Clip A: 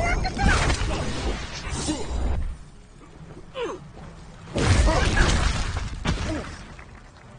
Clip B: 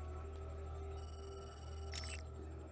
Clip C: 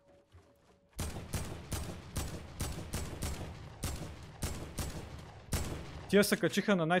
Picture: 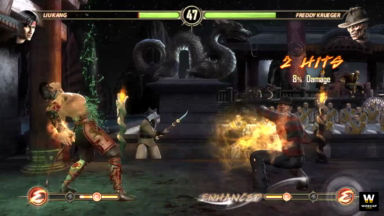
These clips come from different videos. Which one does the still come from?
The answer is A